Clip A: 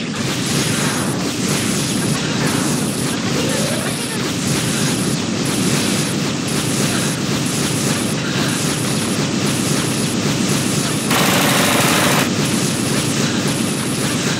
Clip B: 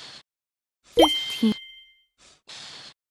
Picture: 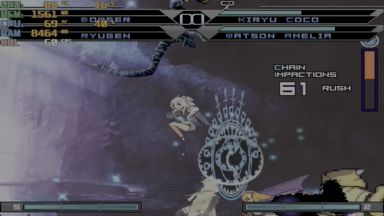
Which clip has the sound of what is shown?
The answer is A